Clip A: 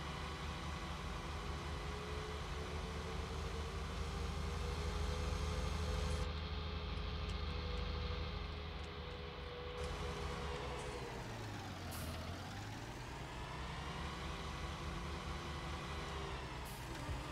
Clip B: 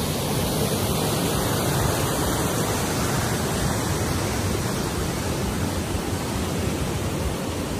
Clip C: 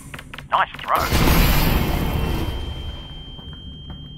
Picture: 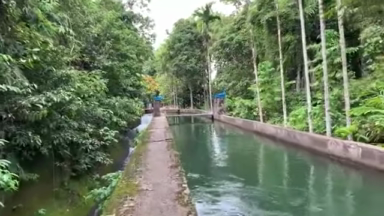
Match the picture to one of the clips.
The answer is B